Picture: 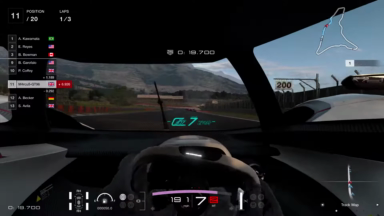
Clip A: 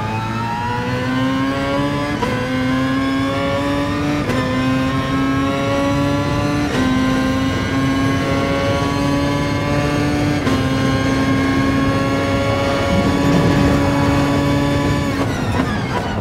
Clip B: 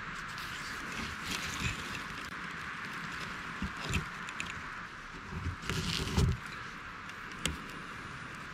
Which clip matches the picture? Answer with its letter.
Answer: A